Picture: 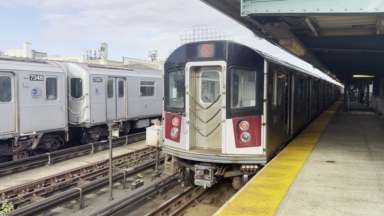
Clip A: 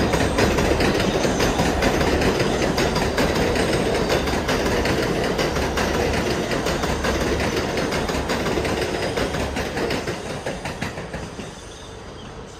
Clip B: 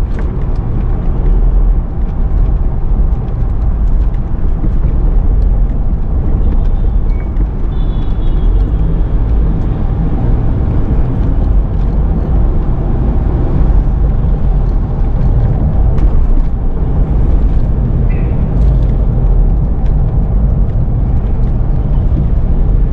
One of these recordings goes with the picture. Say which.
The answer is A